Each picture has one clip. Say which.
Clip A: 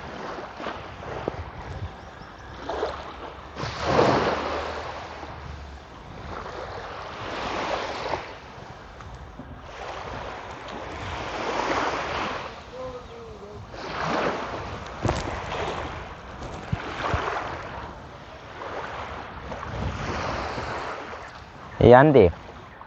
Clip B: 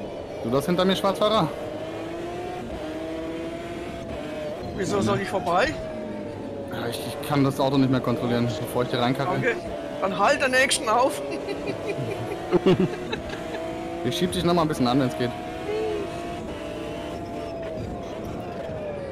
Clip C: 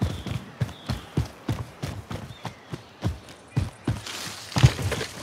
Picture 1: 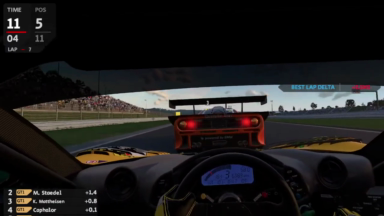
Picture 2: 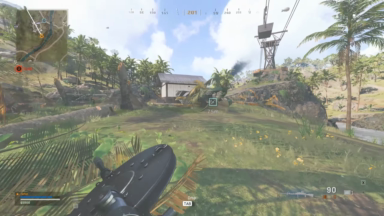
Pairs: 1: B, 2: C